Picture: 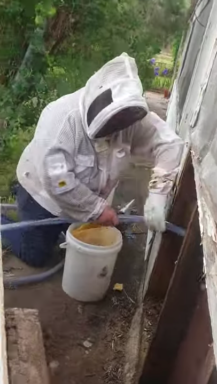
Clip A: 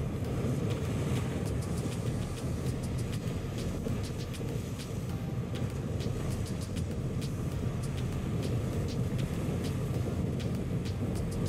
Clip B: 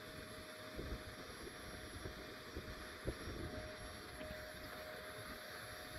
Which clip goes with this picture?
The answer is B